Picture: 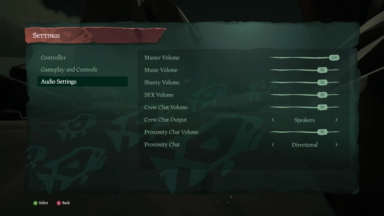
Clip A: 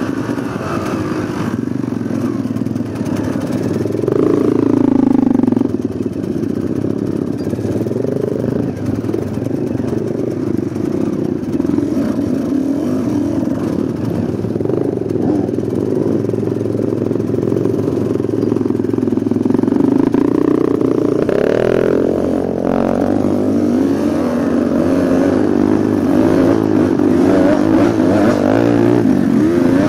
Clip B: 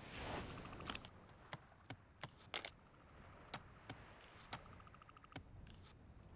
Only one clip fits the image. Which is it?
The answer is B